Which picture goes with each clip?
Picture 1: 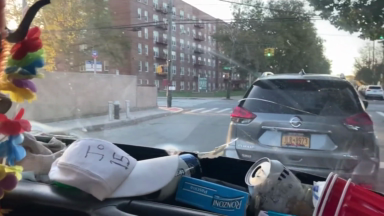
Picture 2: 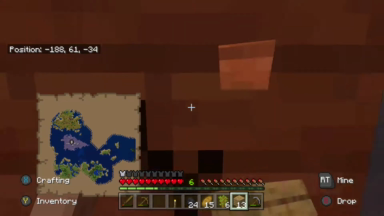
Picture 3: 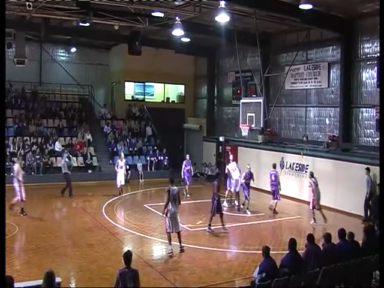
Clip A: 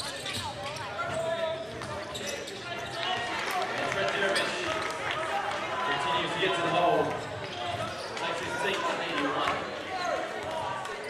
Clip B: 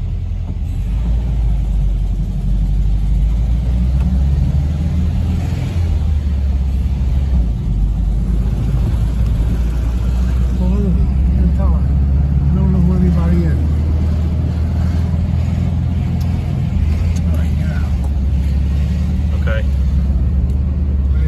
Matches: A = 3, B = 1